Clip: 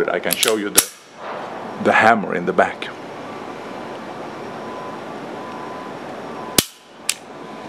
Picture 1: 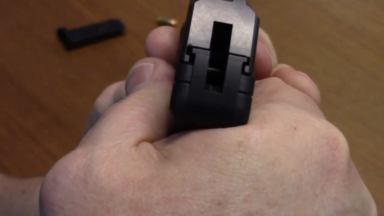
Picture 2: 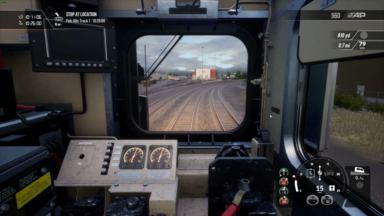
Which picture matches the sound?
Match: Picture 1